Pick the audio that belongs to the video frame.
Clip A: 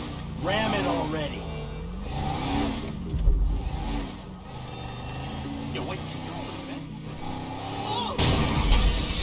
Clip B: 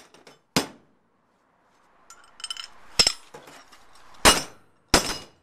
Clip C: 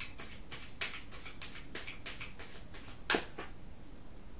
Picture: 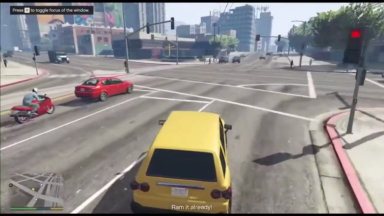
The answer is A